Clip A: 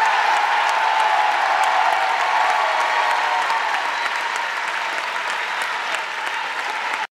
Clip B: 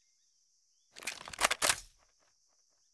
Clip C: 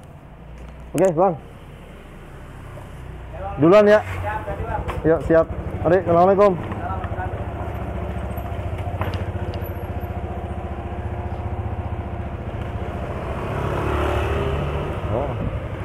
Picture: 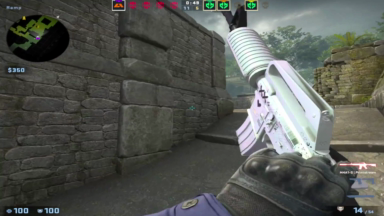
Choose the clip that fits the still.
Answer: B